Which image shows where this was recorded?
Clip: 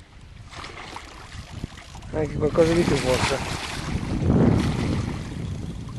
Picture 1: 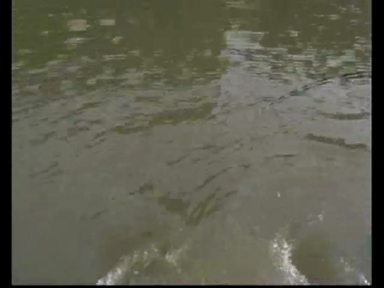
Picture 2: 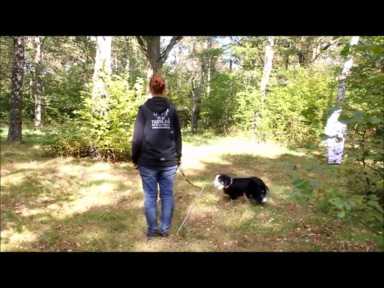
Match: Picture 1